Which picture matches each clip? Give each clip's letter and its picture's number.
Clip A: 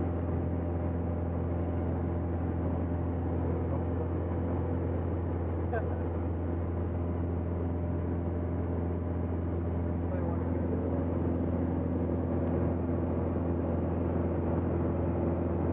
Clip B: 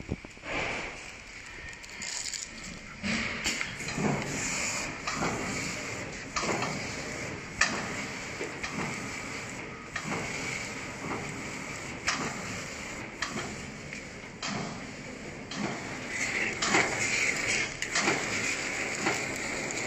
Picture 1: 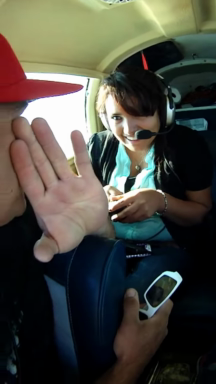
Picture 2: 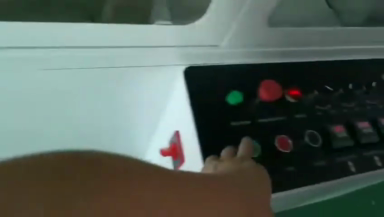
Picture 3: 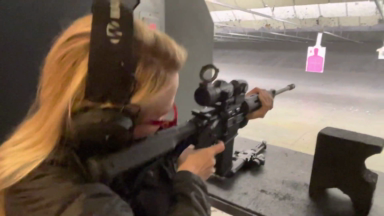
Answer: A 1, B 2